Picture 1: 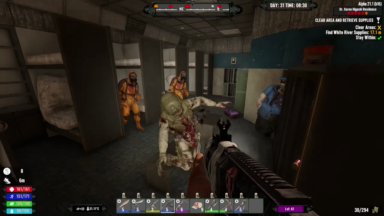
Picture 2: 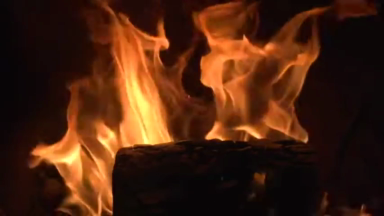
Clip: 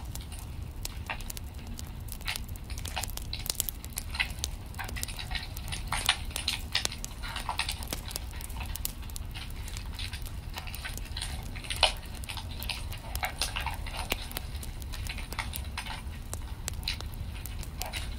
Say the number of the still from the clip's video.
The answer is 2